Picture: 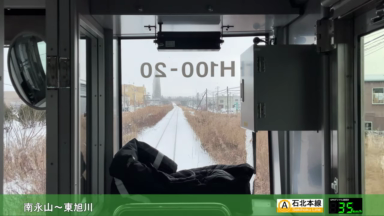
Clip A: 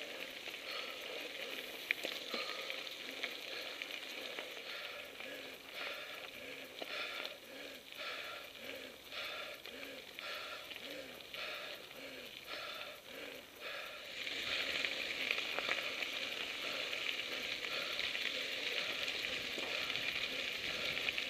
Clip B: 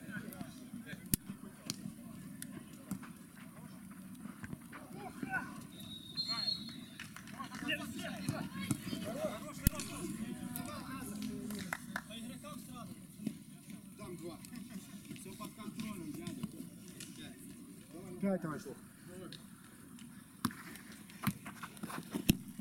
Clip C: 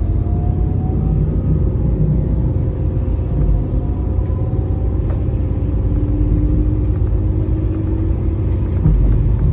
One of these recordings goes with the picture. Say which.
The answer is C